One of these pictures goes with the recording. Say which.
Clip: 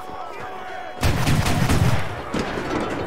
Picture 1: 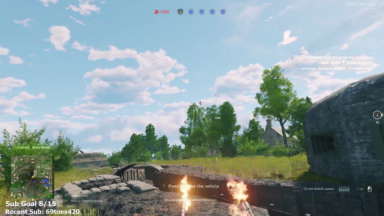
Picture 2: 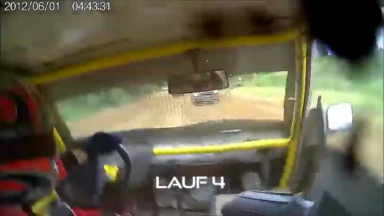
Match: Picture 1